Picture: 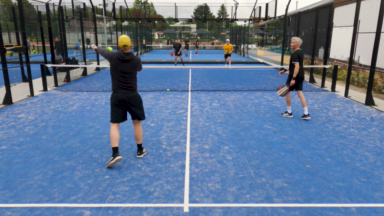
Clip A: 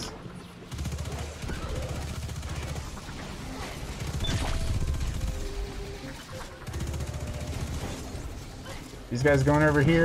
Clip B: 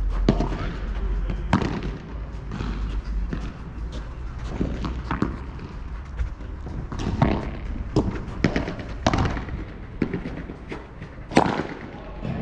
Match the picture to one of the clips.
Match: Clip B